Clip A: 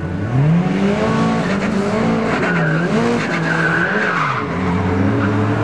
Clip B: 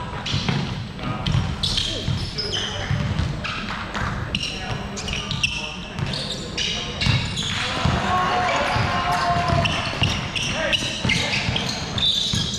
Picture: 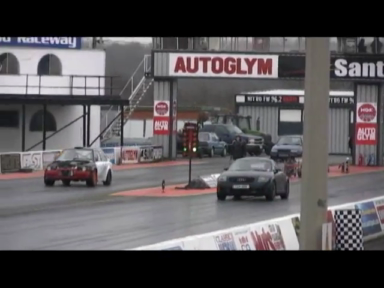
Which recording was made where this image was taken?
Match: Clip A